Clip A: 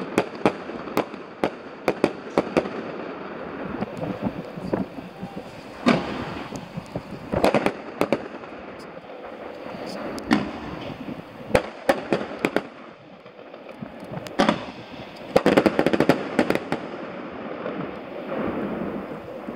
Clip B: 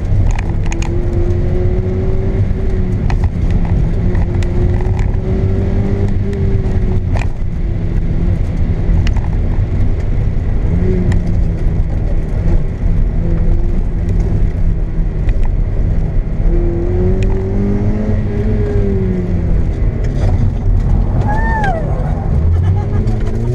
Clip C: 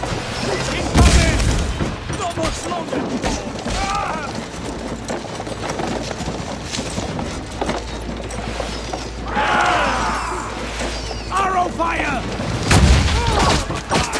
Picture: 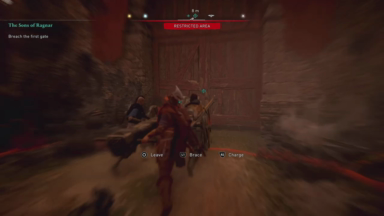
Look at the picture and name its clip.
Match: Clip C